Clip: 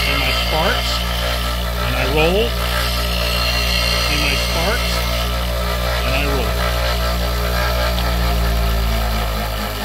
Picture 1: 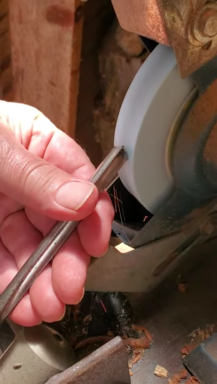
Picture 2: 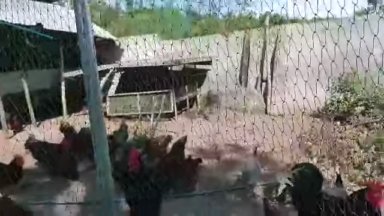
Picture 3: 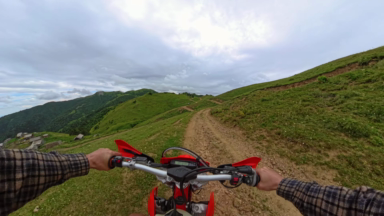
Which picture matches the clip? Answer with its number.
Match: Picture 1